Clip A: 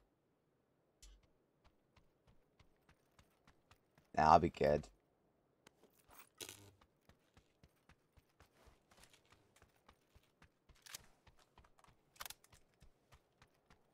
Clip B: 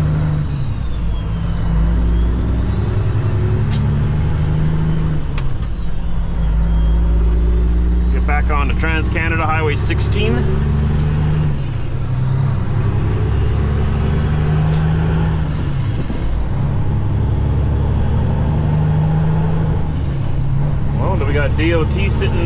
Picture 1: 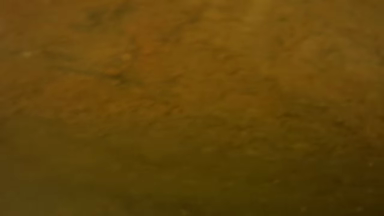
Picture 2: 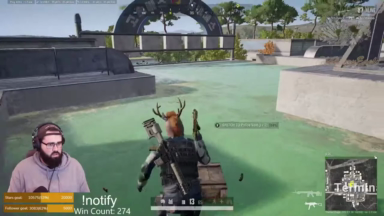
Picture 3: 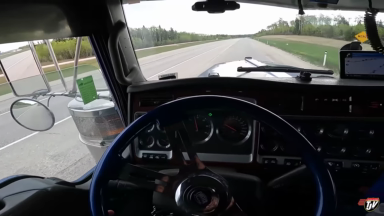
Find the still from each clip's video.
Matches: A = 2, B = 3